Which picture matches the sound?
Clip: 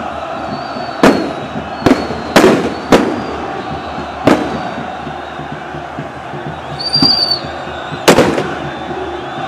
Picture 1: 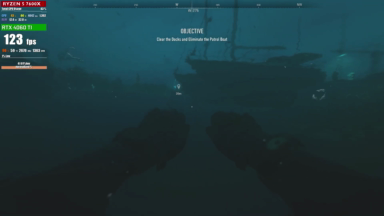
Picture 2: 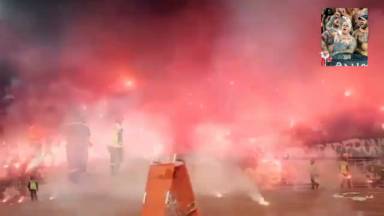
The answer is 2